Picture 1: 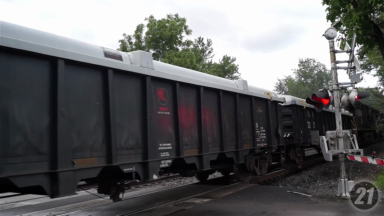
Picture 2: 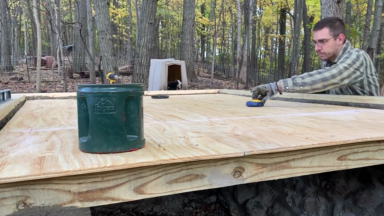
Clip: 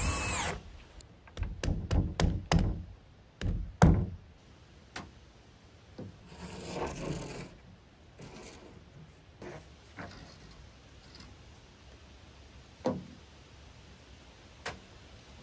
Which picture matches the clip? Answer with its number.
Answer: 2